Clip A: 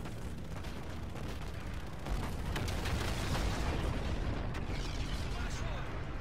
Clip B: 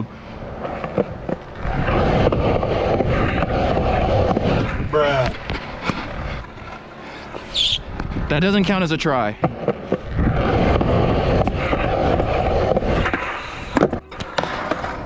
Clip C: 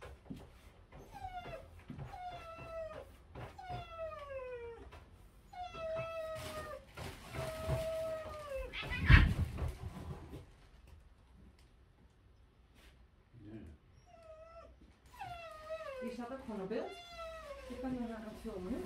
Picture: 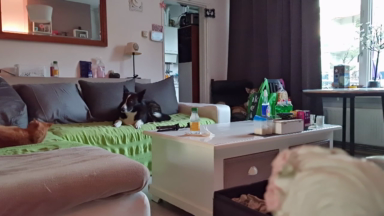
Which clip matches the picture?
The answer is C